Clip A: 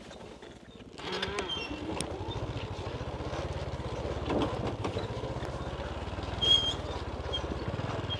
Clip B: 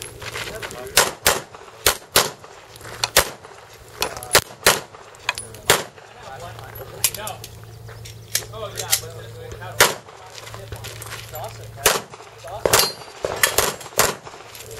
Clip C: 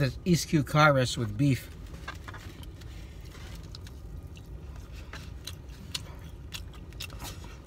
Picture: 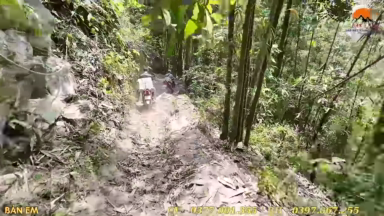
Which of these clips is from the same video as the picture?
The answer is A